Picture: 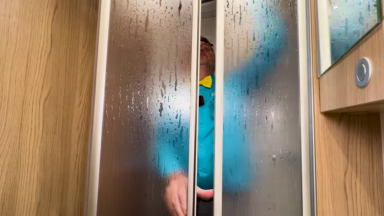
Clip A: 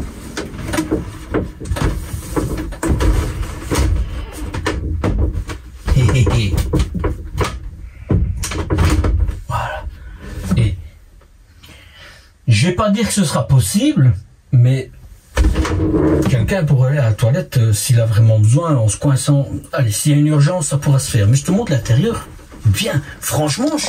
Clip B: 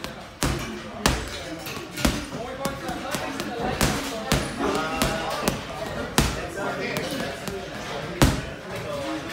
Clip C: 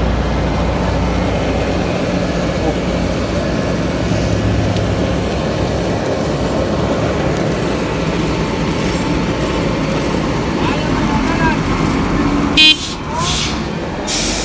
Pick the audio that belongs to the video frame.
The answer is A